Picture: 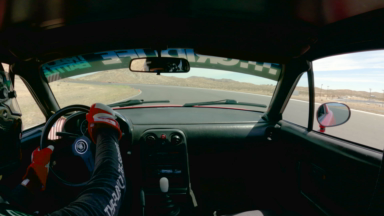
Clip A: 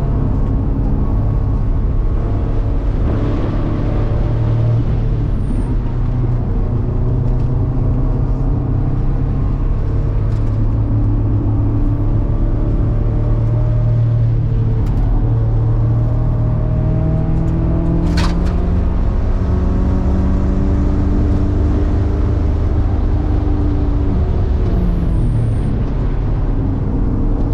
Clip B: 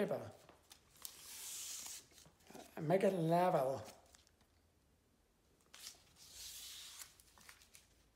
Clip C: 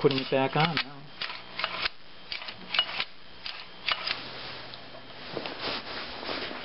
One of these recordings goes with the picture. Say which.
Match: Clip A